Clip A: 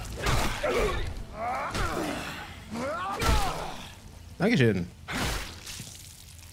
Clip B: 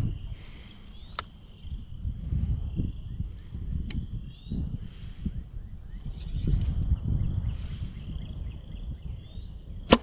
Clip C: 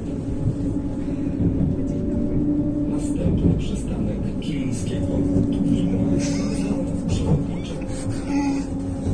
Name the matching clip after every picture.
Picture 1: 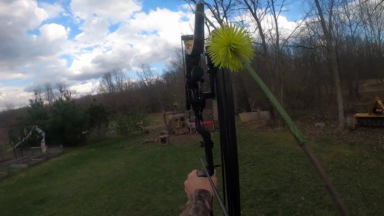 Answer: B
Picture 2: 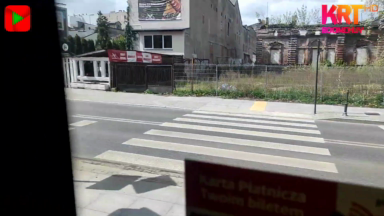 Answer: C